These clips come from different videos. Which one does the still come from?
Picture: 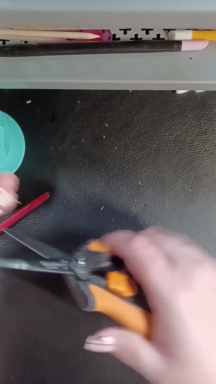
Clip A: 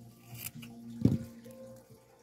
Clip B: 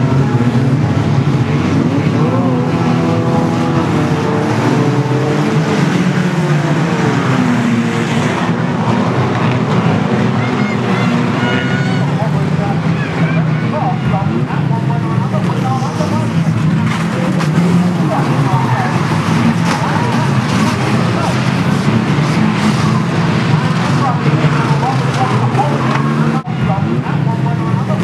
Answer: A